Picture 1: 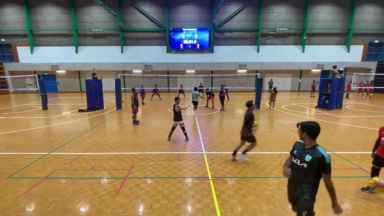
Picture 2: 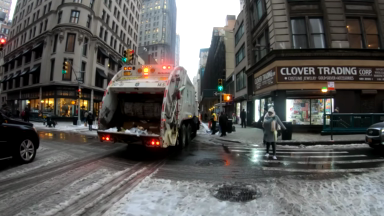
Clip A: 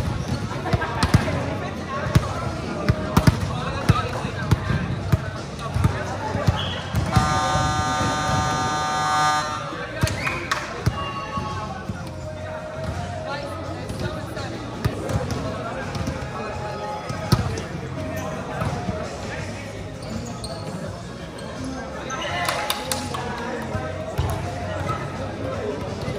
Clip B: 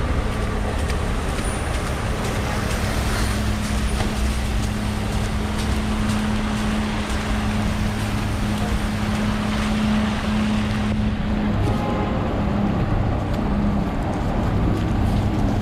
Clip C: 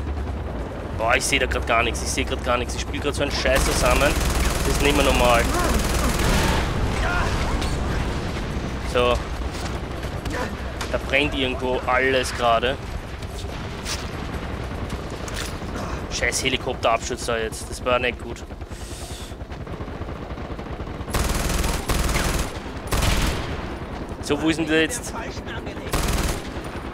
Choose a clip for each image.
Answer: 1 A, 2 B